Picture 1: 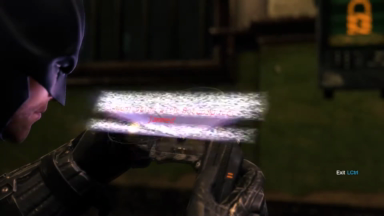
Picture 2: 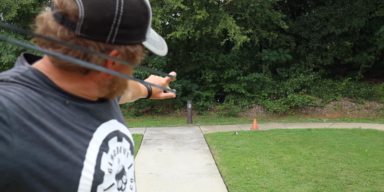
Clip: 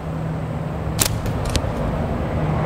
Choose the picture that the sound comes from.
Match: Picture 2